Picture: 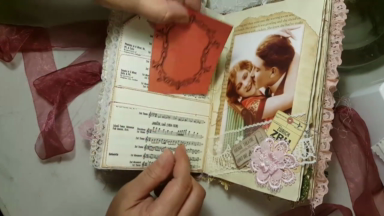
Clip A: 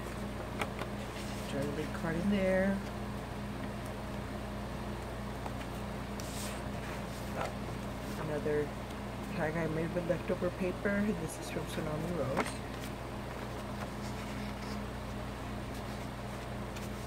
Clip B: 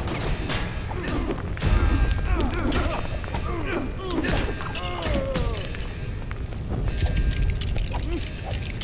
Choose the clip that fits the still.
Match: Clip A